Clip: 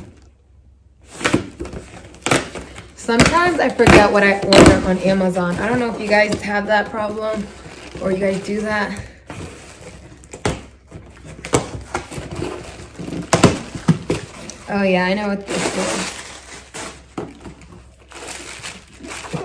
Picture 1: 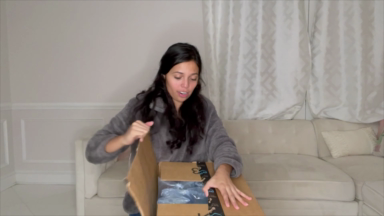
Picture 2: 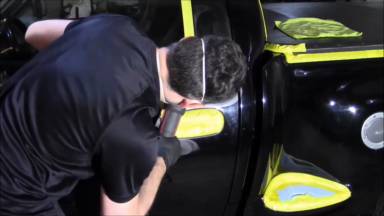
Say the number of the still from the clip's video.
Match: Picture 1